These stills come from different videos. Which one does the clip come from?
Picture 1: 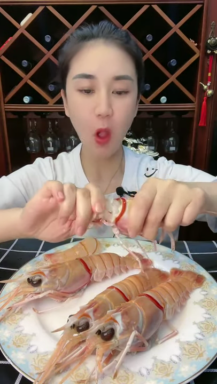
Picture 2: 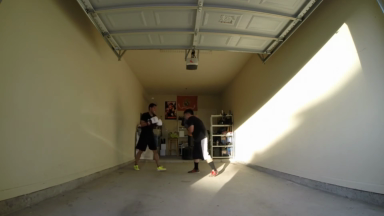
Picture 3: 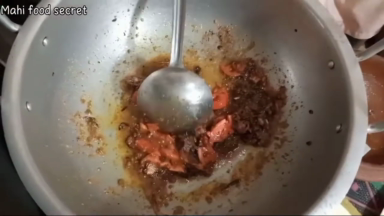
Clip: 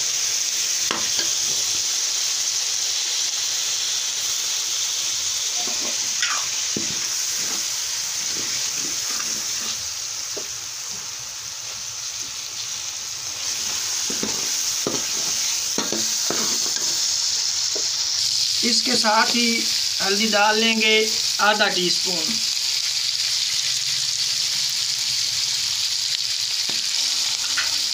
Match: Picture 3